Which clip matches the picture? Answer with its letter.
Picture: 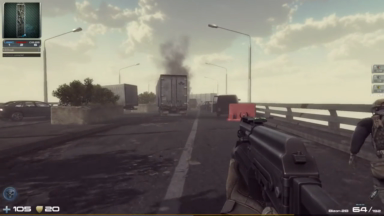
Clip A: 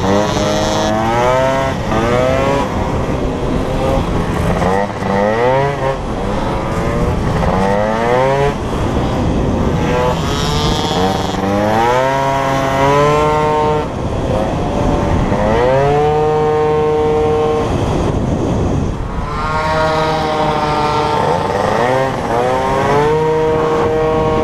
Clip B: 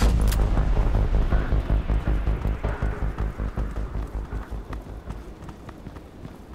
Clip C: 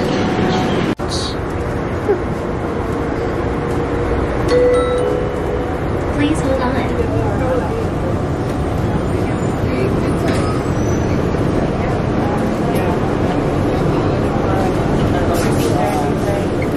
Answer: B